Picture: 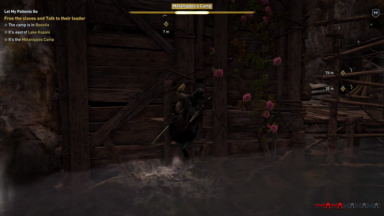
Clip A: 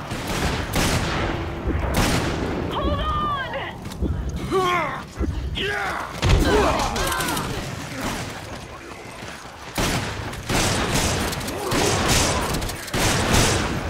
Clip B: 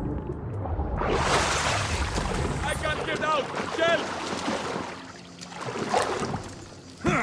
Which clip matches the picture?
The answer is B